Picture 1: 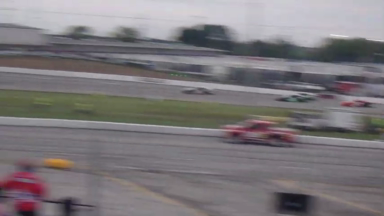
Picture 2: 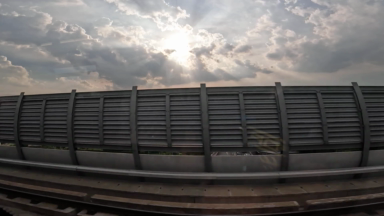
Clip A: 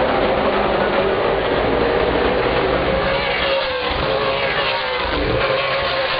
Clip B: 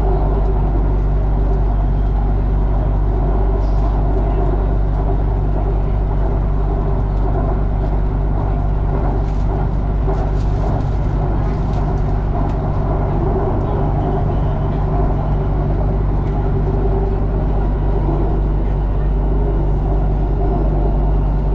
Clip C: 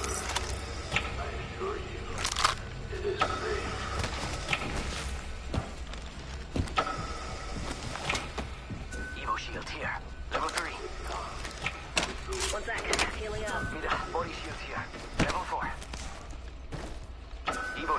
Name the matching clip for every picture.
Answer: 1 A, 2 B